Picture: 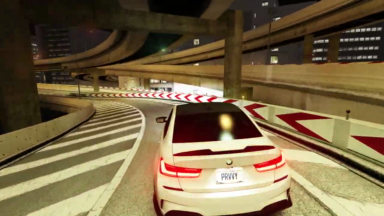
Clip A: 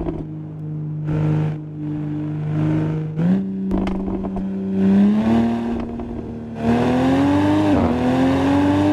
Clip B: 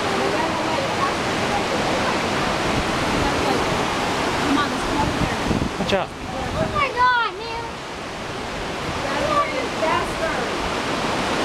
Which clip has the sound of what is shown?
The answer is A